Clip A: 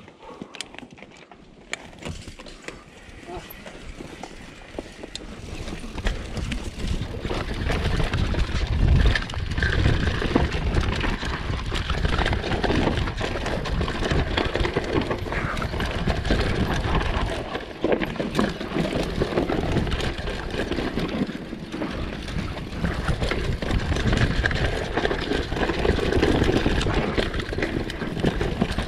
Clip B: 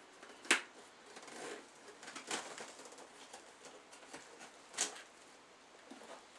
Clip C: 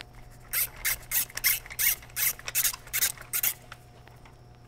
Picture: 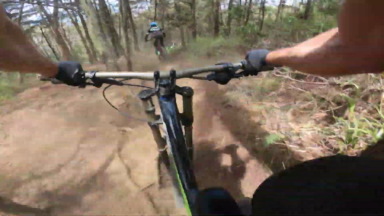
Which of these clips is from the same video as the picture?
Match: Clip A